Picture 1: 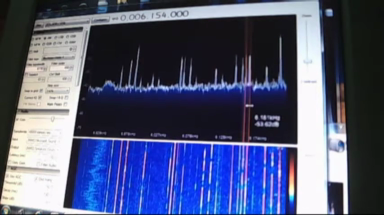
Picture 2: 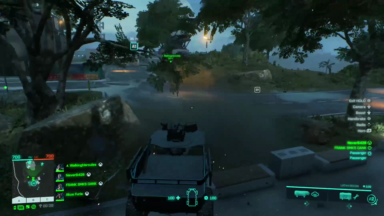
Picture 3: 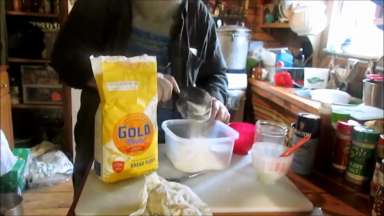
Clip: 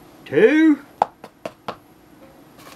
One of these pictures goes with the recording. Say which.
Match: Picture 3